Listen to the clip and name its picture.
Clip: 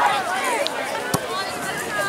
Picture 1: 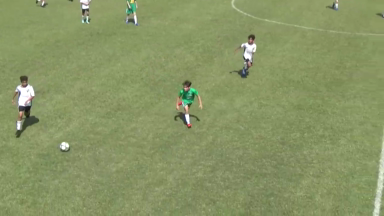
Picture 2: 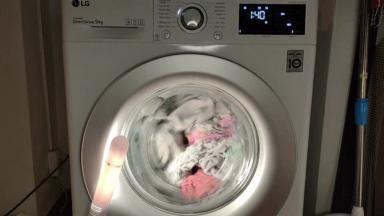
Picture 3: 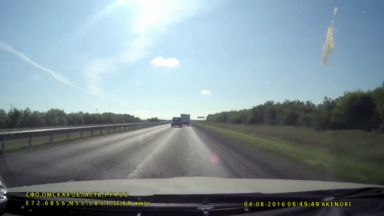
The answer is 1